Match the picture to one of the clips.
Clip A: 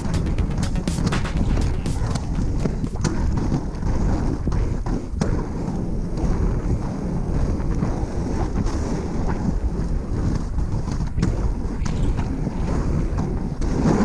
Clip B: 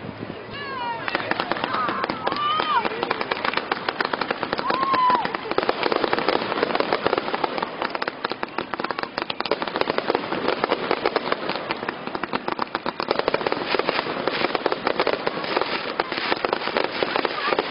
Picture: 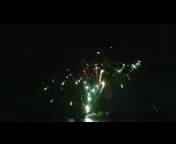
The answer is B